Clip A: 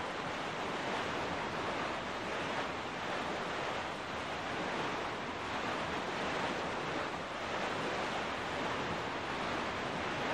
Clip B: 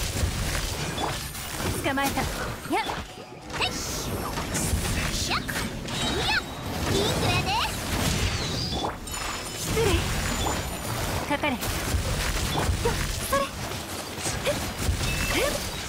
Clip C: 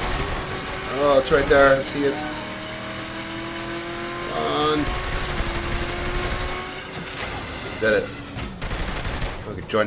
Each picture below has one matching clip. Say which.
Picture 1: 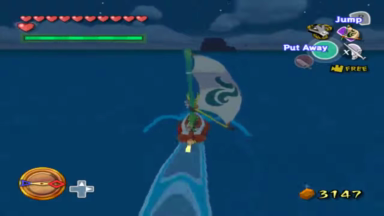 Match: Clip A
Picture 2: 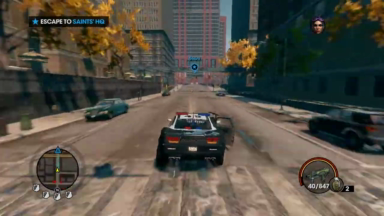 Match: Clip C